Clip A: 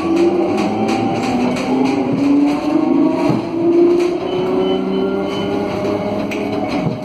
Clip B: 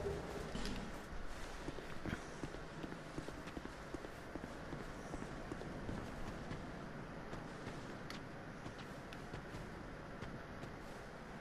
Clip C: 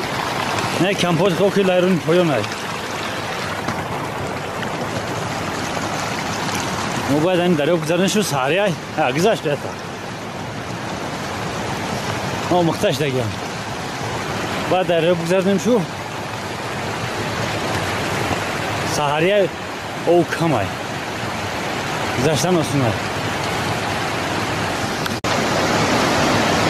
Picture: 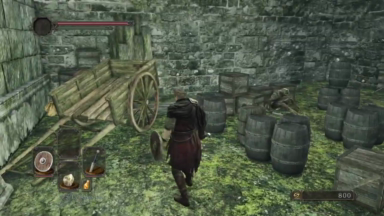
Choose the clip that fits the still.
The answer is B